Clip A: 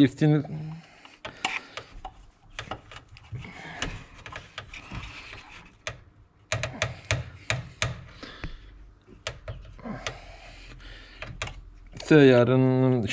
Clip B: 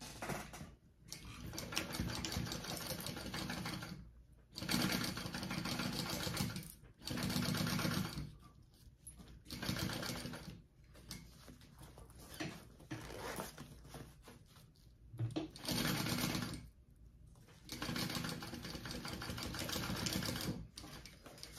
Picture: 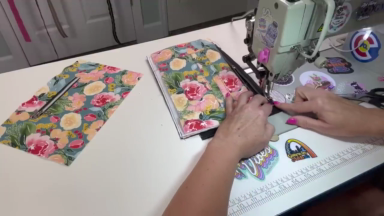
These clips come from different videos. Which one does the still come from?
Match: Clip B